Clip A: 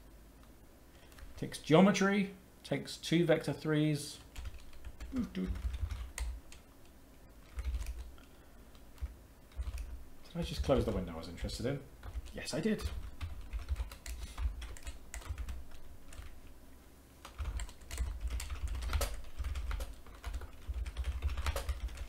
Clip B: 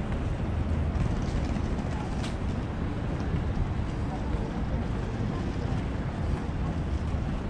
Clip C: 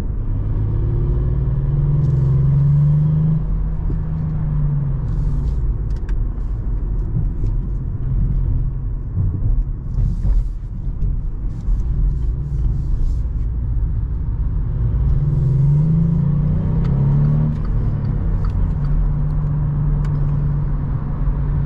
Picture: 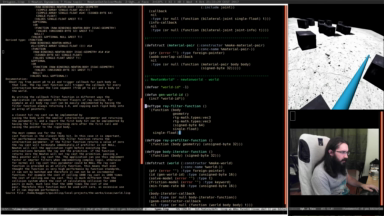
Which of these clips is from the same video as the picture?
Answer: A